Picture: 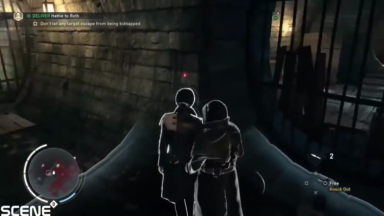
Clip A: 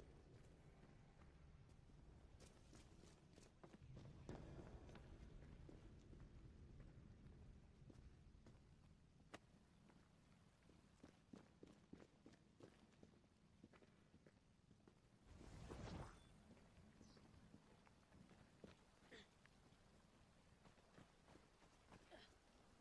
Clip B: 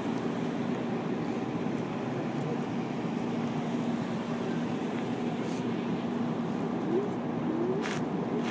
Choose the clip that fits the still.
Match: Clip A